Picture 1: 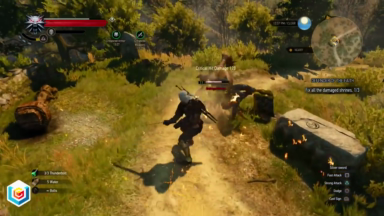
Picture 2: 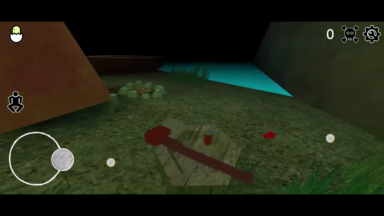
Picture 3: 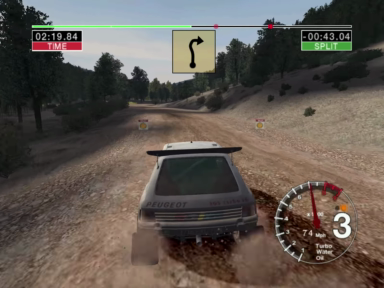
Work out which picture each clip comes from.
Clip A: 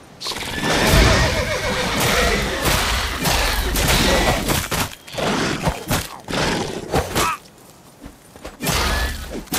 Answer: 1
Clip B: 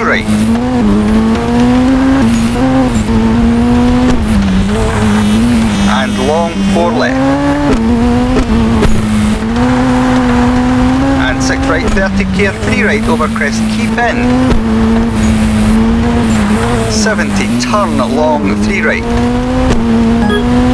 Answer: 3